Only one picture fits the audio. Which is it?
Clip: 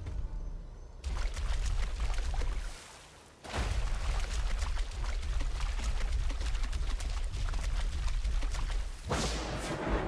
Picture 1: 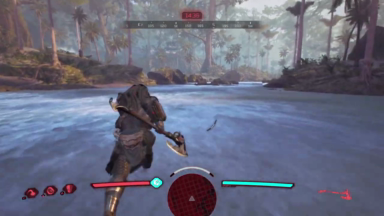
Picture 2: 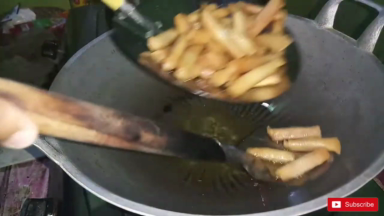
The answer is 1